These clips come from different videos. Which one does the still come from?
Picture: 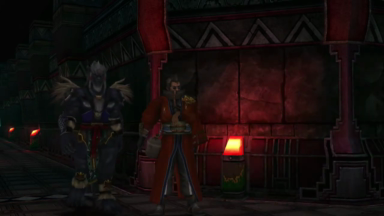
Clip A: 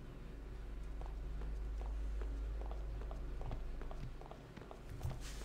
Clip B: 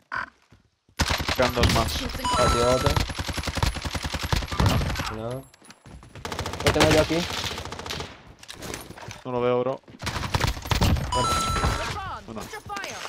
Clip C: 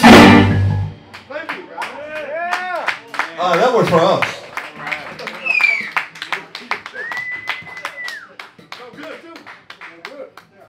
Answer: A